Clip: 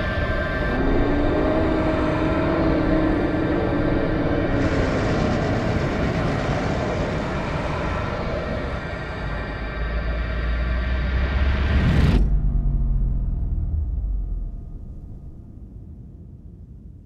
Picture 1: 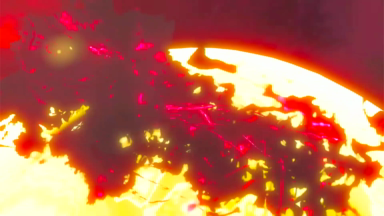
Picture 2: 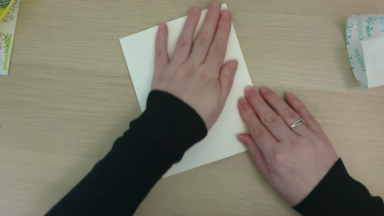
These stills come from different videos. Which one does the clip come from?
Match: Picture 1